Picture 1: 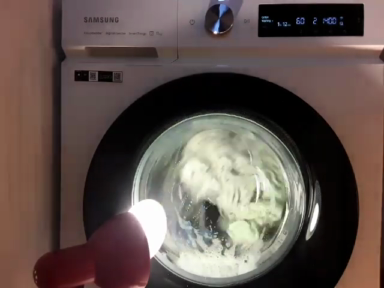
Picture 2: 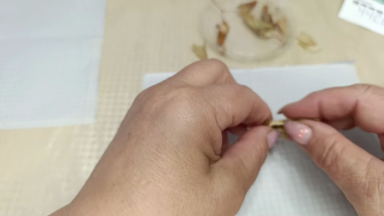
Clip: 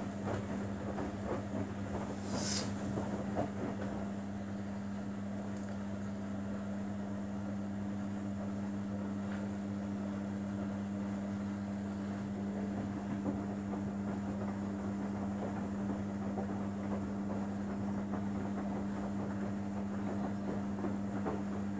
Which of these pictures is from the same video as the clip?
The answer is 1